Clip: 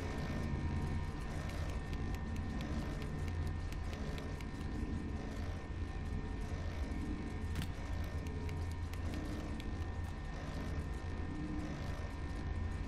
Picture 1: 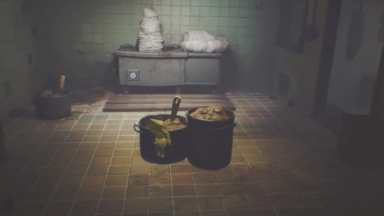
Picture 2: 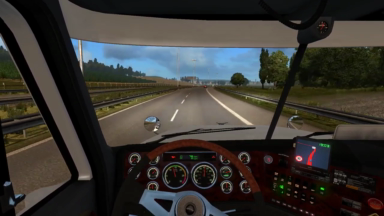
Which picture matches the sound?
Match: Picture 1